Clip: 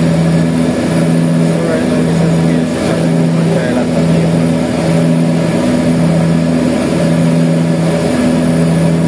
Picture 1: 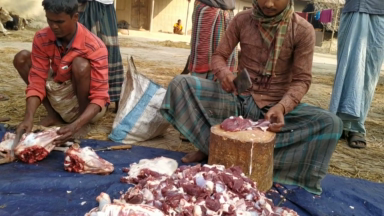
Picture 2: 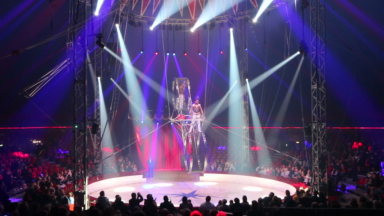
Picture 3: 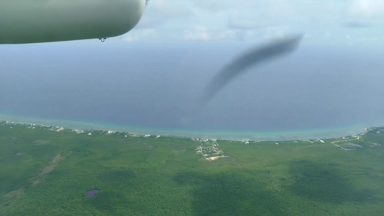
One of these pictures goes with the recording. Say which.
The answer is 3